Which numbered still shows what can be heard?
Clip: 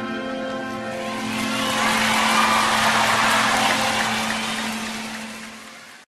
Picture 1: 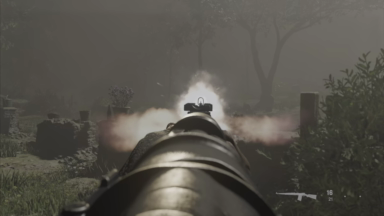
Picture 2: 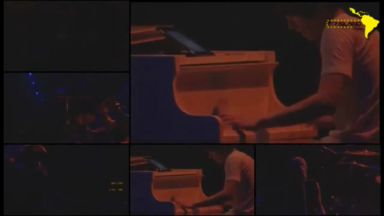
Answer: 2